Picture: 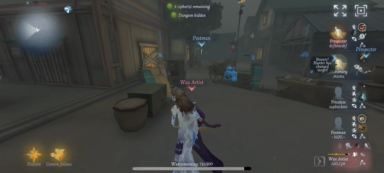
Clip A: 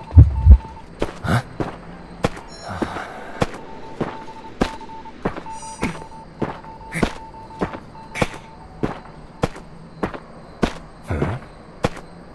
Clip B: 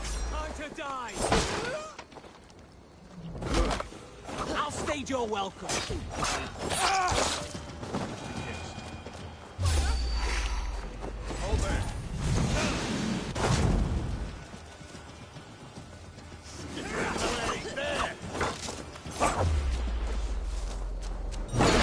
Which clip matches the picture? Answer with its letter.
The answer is A